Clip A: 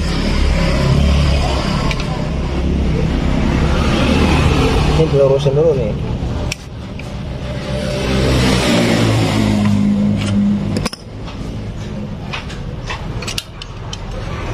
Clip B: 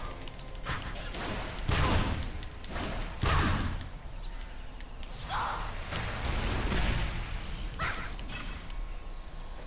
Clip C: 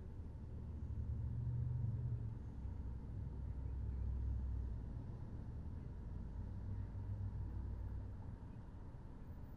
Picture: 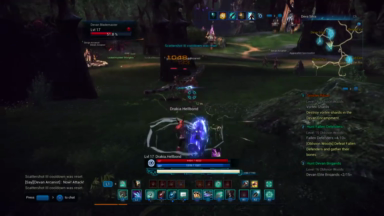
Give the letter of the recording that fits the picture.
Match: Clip B